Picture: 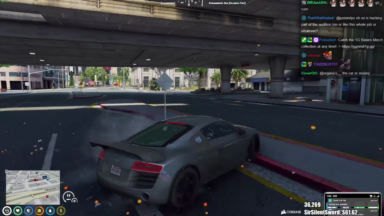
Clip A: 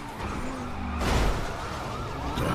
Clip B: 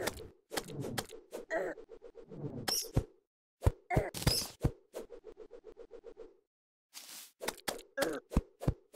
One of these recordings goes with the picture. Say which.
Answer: A